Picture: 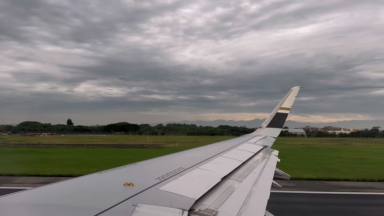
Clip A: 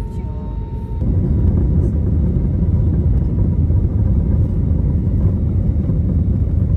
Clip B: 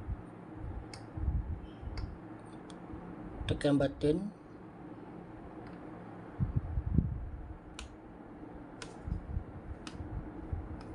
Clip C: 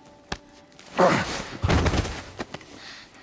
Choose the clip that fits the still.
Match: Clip A